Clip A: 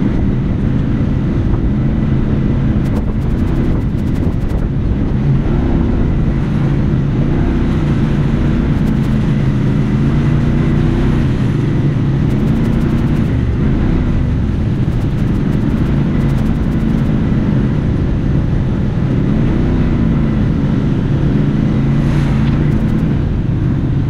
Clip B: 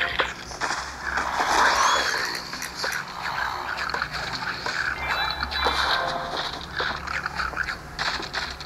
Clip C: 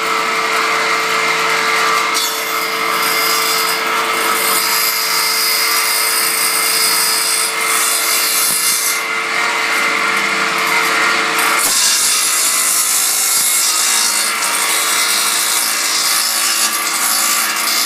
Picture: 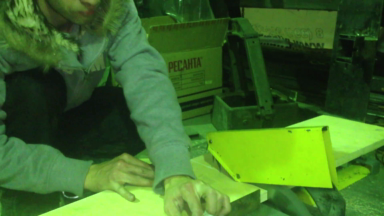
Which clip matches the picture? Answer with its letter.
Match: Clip C